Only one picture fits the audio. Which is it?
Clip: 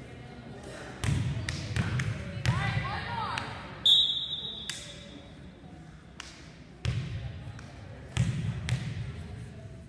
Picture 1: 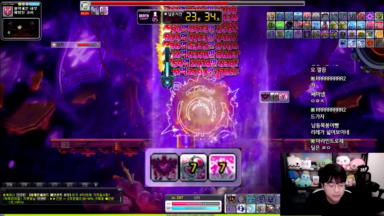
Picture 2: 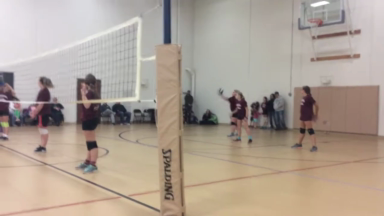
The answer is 2